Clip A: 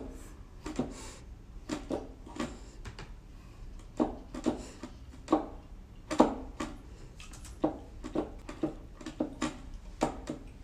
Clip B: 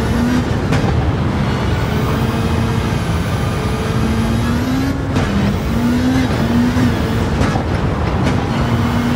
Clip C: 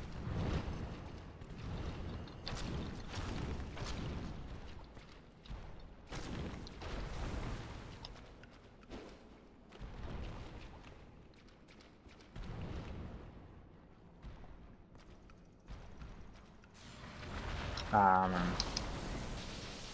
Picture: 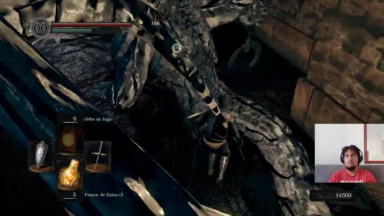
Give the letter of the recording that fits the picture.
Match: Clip C